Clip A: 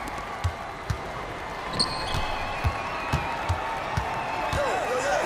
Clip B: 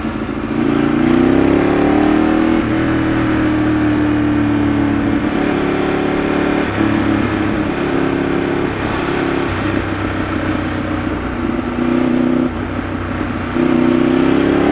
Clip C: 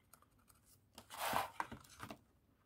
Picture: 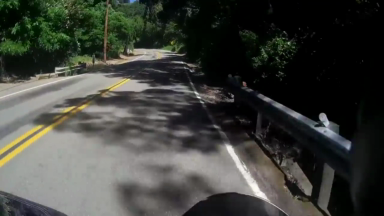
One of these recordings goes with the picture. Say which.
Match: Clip B